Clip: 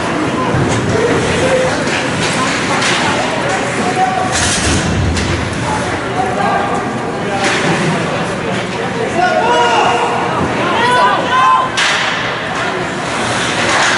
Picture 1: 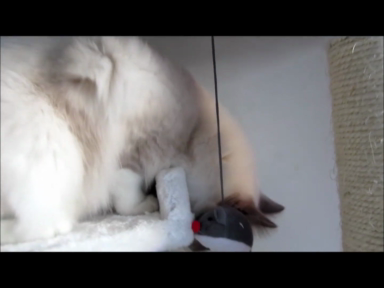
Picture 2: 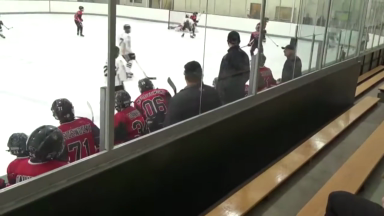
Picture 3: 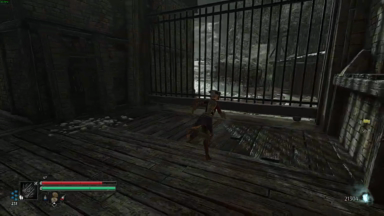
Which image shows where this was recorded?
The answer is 2